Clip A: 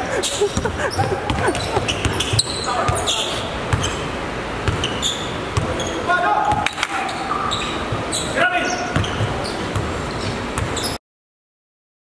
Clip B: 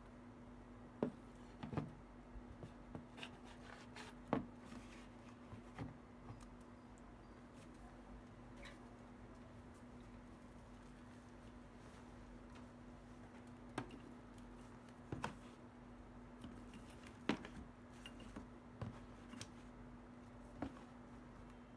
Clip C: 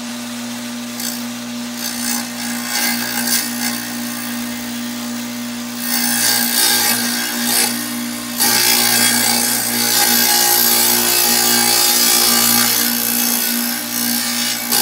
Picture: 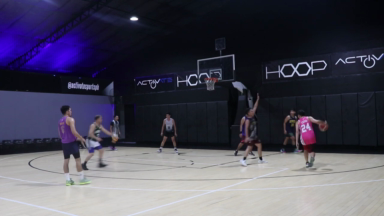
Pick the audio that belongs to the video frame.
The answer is A